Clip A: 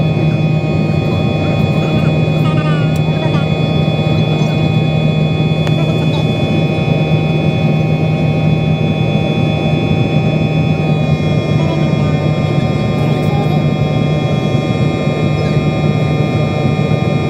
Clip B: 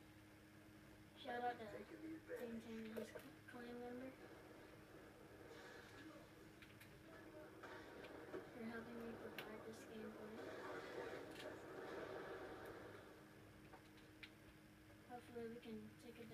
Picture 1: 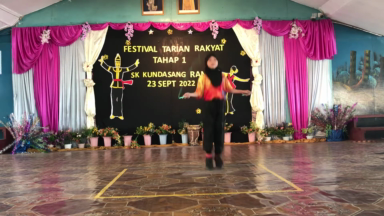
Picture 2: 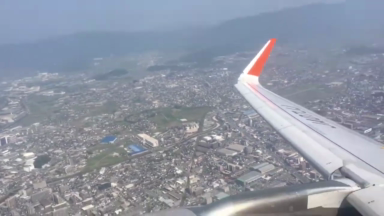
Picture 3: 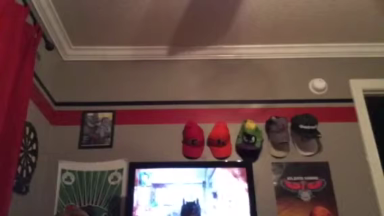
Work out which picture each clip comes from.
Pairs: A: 2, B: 3